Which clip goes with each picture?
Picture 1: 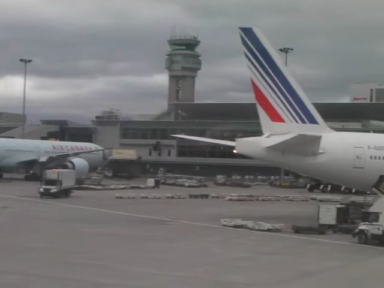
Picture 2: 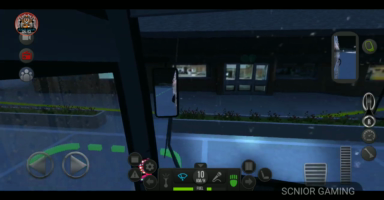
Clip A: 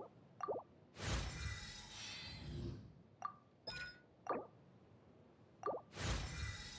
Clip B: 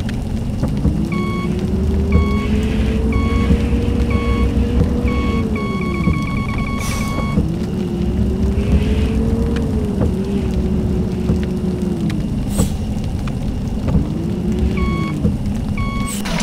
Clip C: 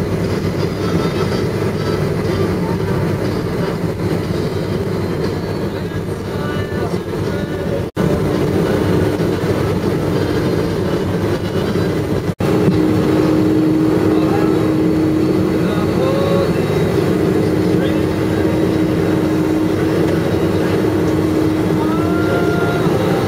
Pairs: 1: C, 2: B